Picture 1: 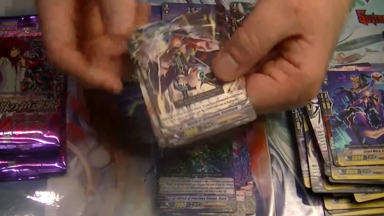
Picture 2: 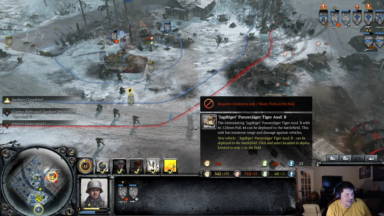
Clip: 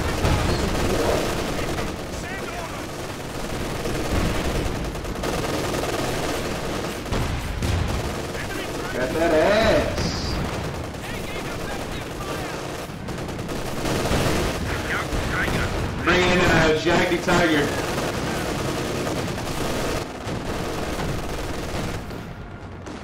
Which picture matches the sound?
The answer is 2